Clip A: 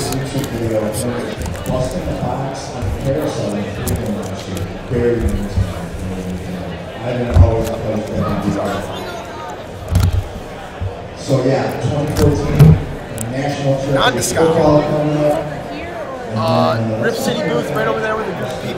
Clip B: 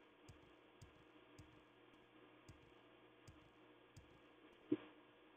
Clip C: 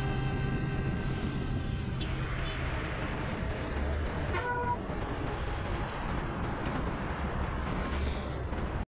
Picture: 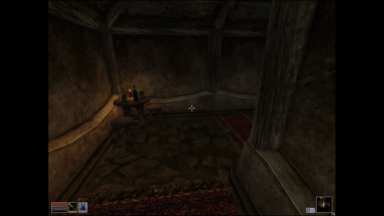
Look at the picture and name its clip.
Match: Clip B